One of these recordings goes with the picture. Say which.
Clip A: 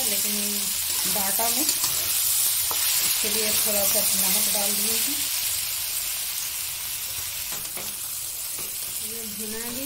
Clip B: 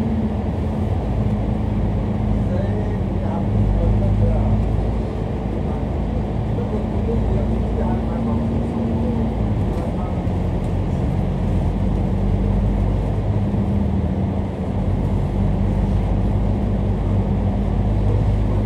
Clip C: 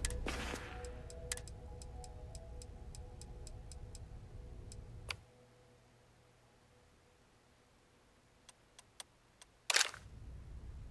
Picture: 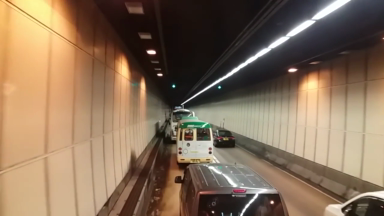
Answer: B